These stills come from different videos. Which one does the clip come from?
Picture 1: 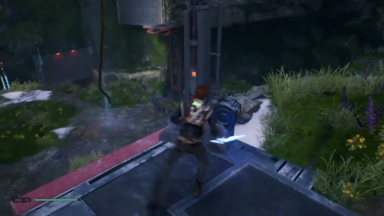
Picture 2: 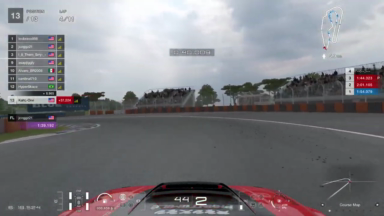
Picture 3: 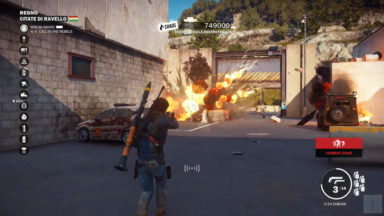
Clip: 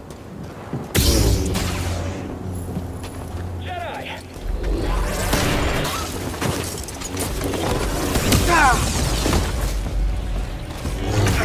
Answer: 1